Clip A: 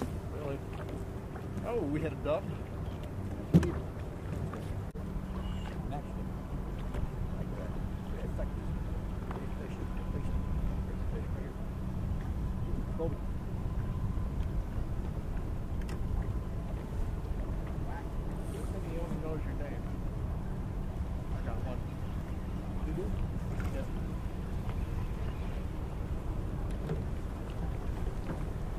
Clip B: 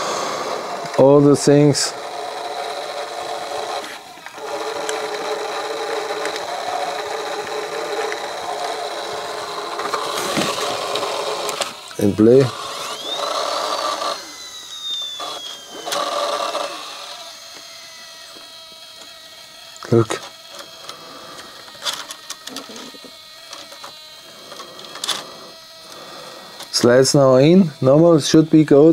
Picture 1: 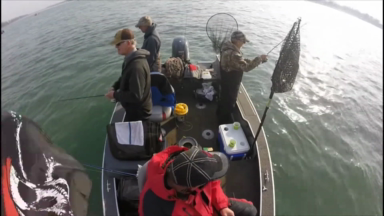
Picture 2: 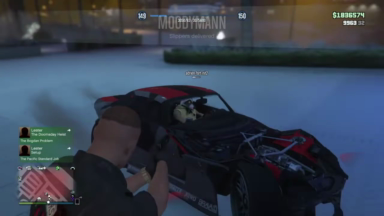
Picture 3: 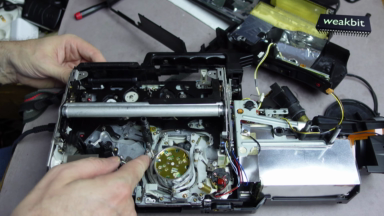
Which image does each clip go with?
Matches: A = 1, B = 3